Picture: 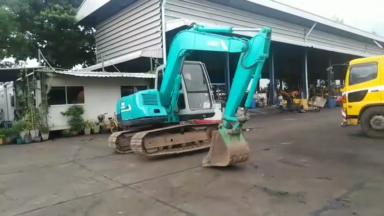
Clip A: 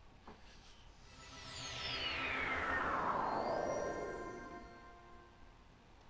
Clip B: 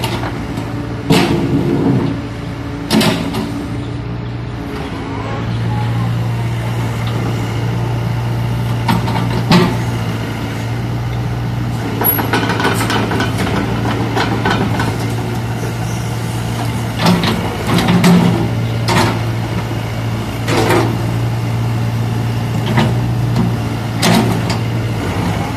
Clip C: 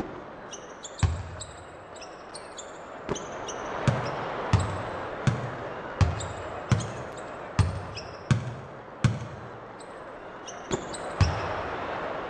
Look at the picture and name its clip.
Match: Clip B